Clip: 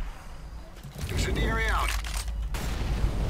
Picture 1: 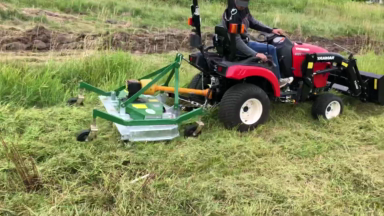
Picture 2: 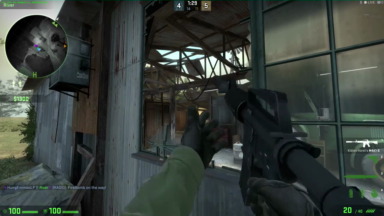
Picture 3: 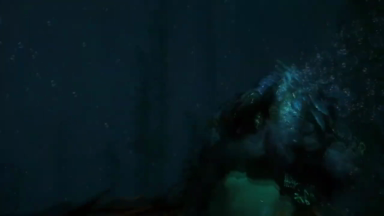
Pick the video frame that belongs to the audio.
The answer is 2